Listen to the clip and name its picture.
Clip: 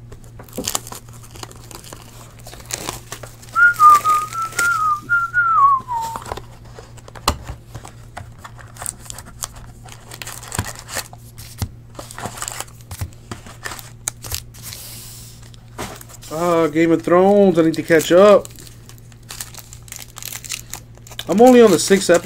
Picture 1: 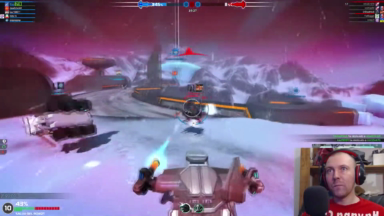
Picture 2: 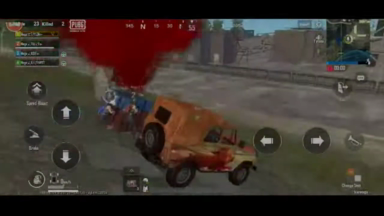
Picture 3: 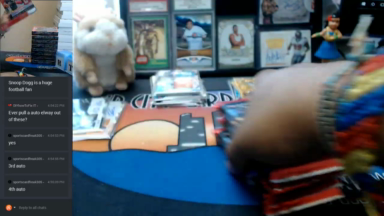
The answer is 3